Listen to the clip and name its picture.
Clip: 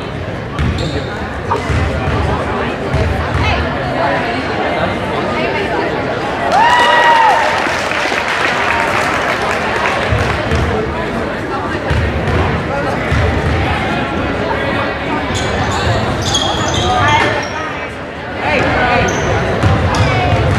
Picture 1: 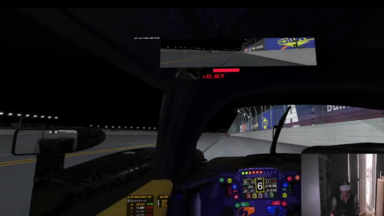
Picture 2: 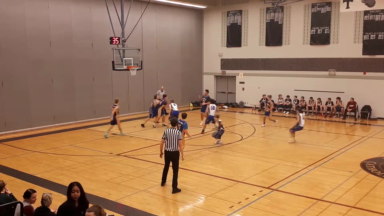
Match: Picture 2